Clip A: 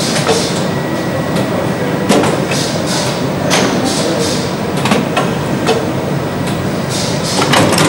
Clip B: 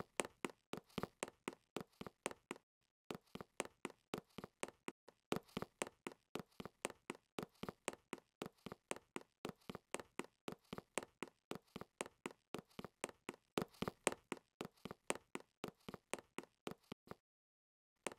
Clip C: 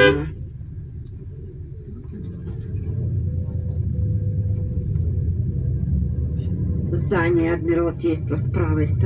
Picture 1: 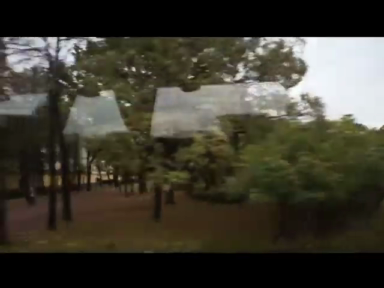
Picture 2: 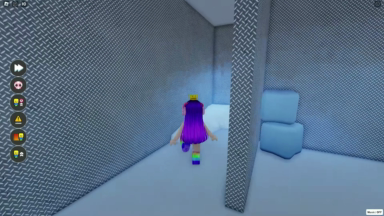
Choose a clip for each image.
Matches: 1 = C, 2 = B